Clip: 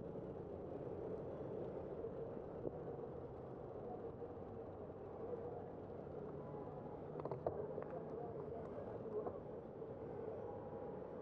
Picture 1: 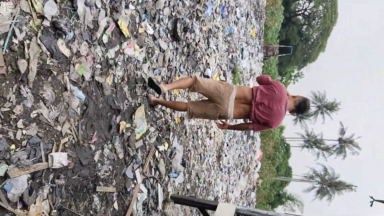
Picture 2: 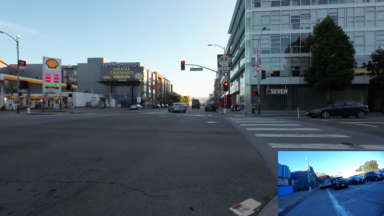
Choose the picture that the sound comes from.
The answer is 2